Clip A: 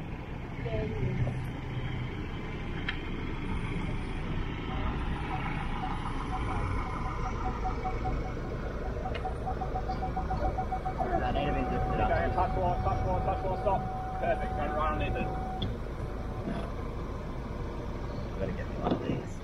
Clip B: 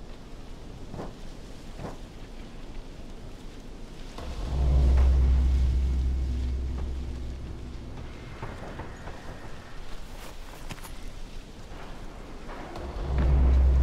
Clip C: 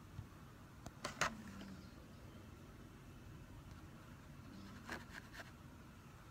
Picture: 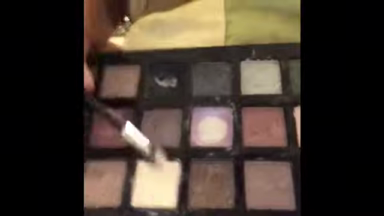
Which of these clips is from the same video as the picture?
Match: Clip C